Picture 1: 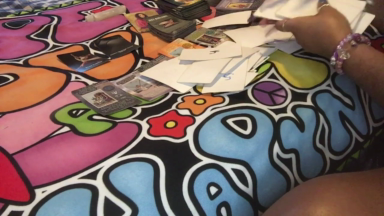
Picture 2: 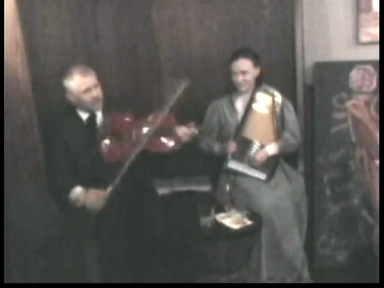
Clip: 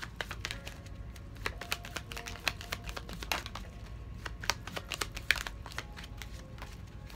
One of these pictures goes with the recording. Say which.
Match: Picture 1